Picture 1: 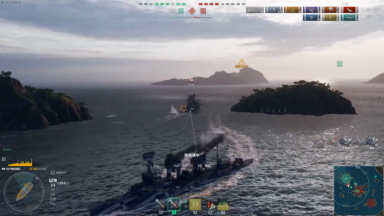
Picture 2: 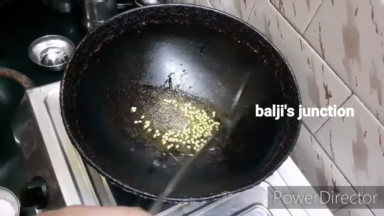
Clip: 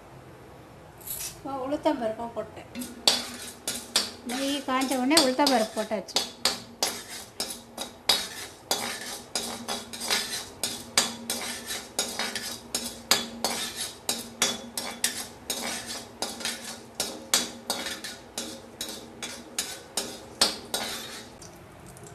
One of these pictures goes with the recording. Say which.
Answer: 2